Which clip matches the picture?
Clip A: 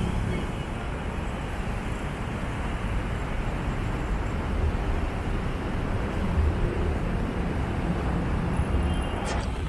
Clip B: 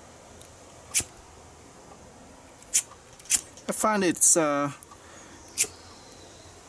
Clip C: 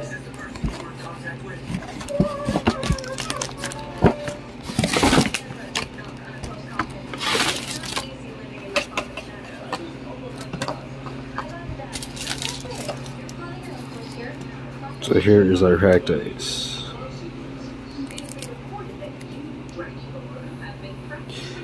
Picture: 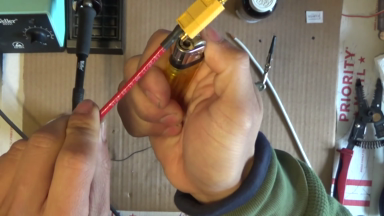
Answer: B